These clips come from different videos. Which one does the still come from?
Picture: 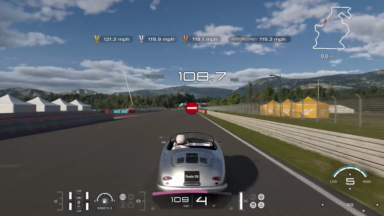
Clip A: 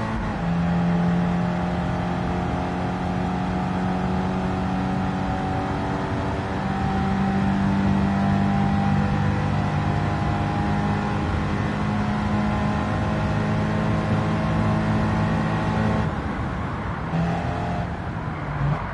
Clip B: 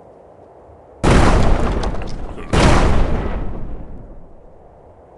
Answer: A